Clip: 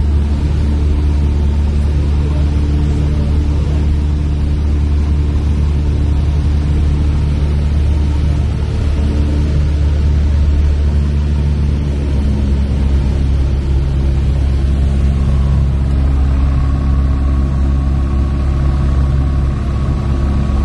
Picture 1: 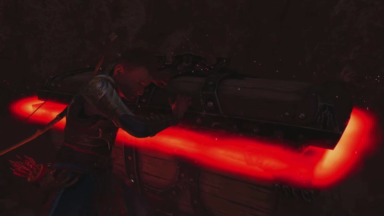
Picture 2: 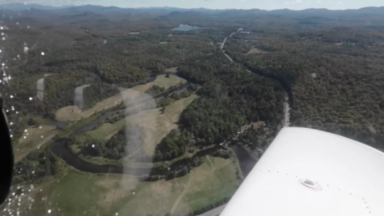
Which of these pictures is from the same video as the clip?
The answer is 2